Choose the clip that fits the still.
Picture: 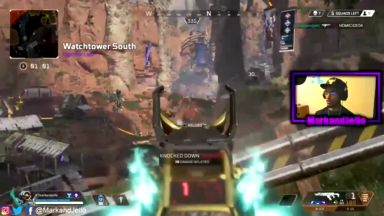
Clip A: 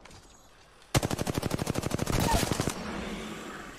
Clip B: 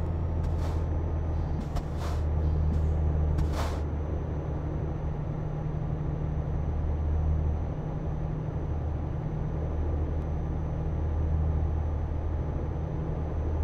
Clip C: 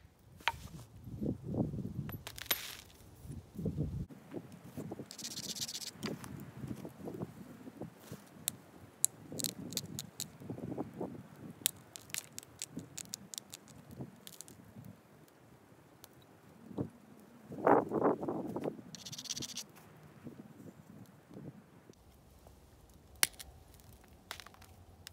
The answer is A